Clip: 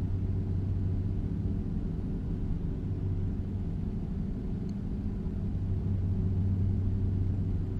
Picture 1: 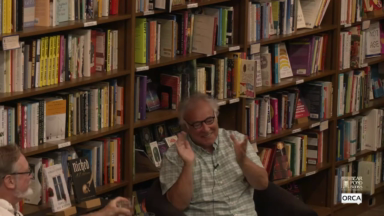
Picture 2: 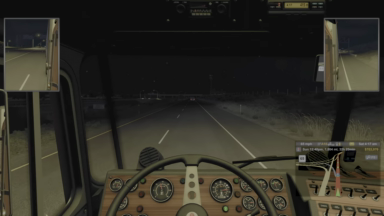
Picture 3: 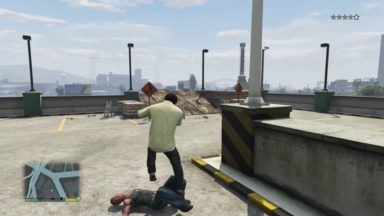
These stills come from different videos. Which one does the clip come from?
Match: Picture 2